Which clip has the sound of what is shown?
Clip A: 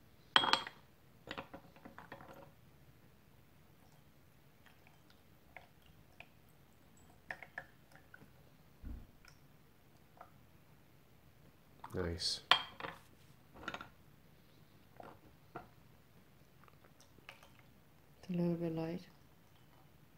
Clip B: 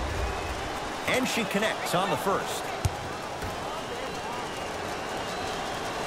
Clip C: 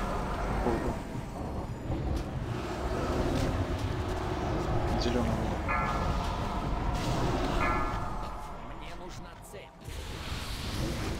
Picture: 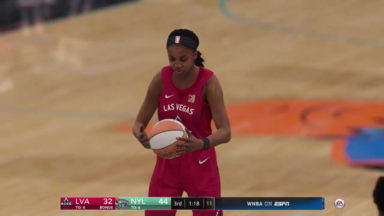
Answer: B